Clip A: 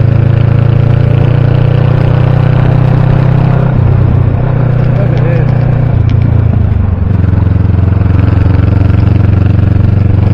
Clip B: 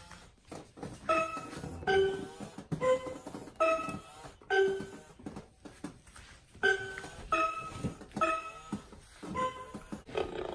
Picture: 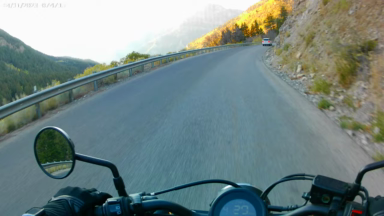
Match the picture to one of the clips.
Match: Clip A